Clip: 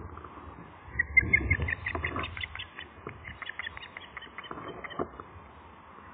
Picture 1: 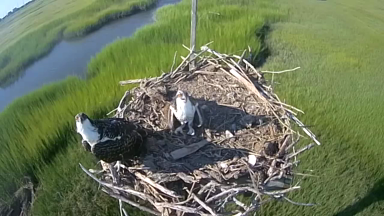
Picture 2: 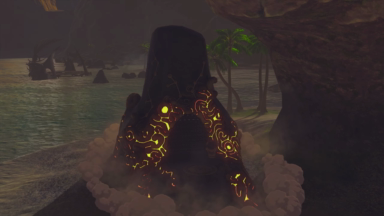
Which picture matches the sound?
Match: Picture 1